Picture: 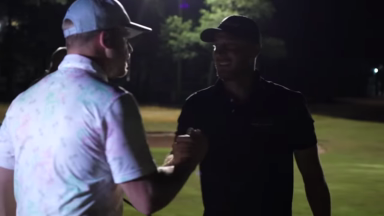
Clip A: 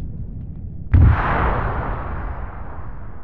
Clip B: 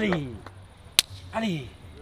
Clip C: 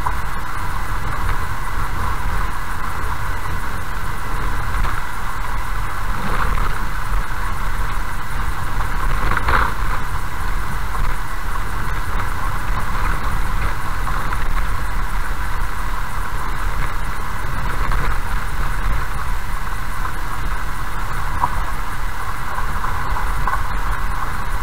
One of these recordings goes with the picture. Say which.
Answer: B